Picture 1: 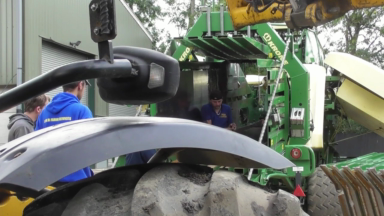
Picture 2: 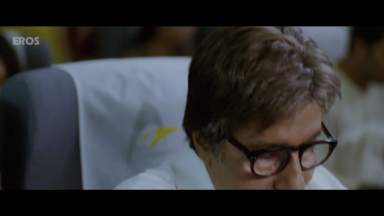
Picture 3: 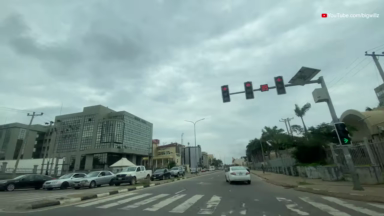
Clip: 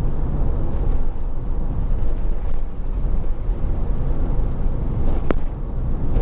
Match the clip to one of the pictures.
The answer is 3